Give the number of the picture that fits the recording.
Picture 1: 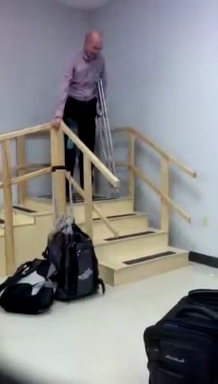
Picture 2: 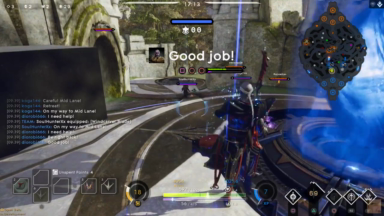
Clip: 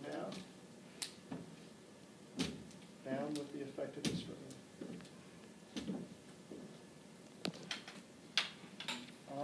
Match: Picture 1